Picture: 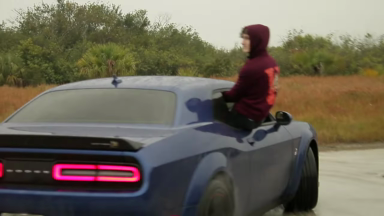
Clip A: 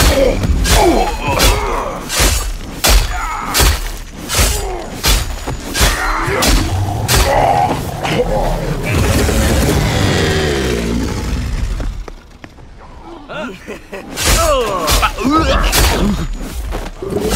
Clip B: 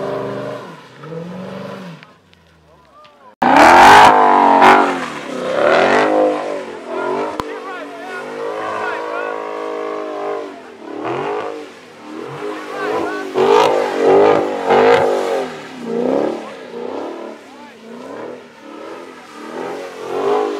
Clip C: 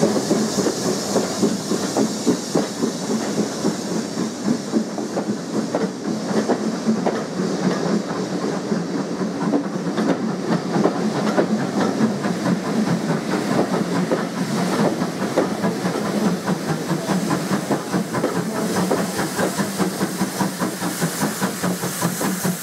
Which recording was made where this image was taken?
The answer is B